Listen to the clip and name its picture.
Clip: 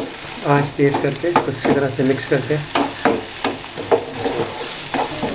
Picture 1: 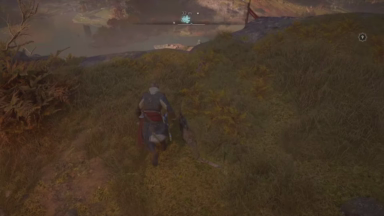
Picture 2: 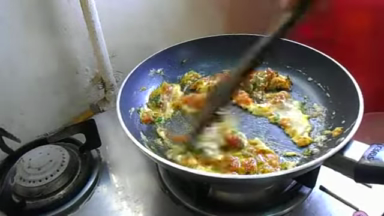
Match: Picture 2